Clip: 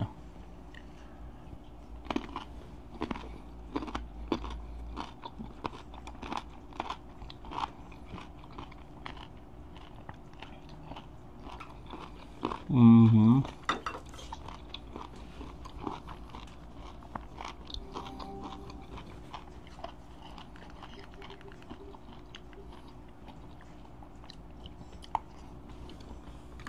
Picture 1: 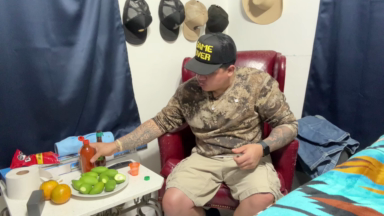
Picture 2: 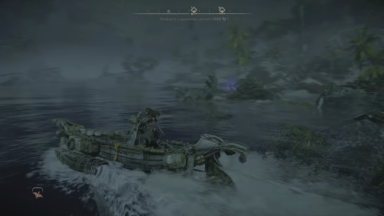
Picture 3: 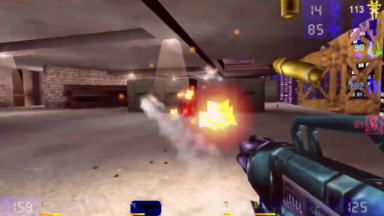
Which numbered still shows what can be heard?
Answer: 1